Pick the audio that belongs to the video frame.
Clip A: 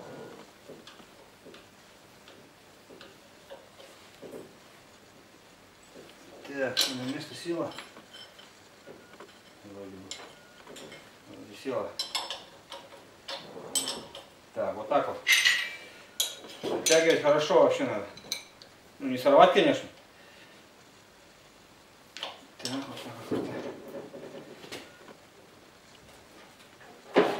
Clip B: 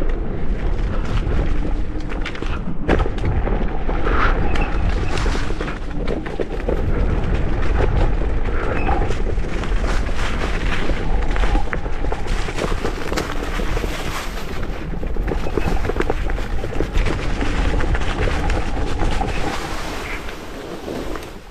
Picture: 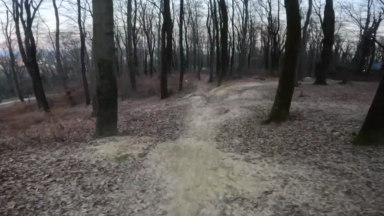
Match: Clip B